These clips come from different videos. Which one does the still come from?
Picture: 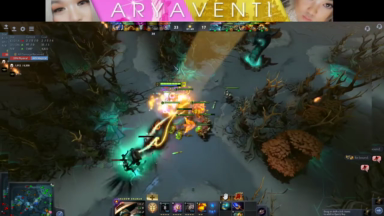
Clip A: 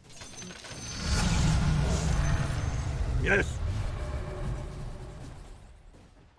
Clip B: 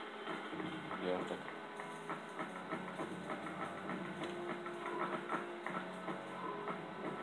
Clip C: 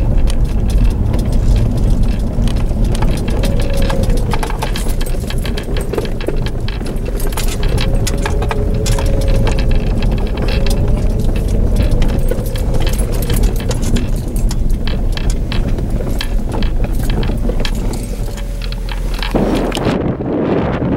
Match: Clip A